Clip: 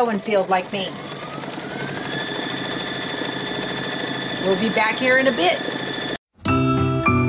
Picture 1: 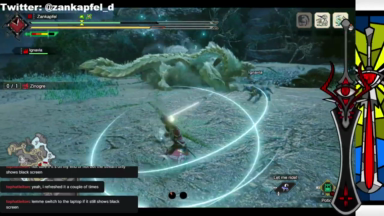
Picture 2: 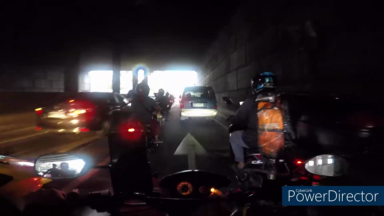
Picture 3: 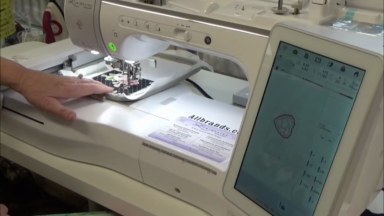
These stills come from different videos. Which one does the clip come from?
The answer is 3